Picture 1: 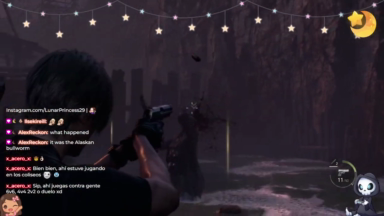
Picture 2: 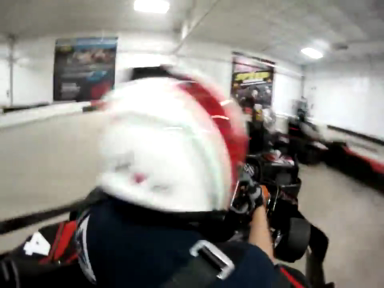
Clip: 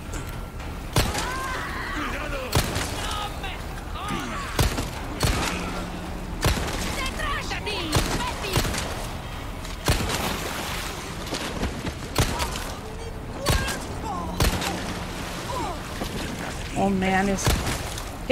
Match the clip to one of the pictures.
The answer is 1